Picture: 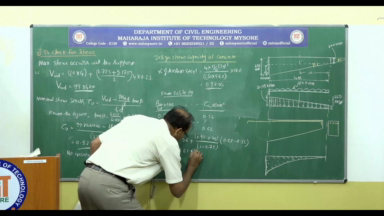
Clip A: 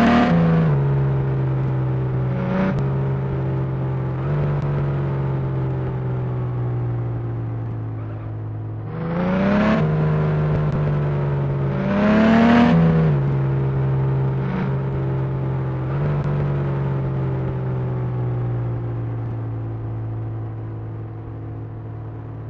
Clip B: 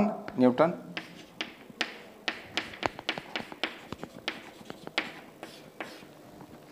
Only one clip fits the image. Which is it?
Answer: B